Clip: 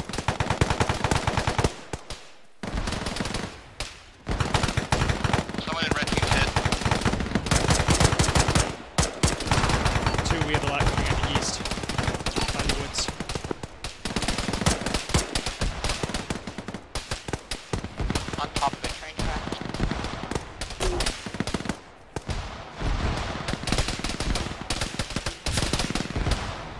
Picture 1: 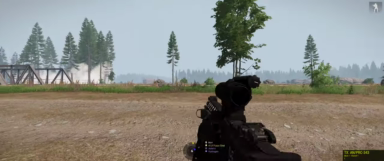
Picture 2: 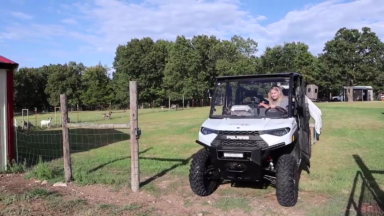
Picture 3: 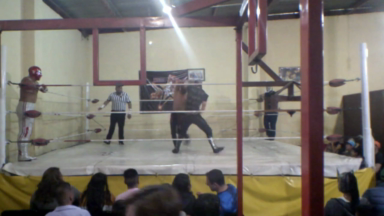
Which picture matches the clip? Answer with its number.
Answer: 1